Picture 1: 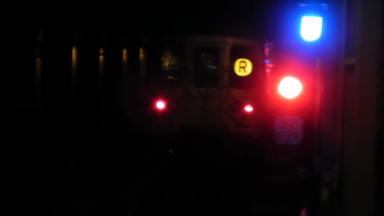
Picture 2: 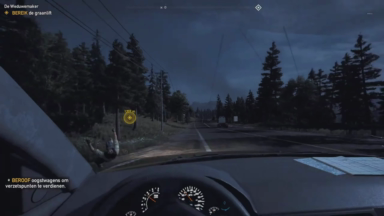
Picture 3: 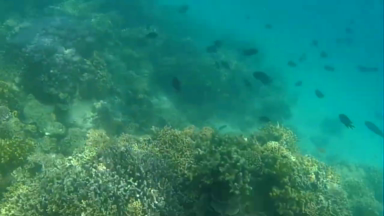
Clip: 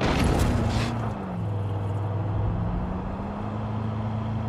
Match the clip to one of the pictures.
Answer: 2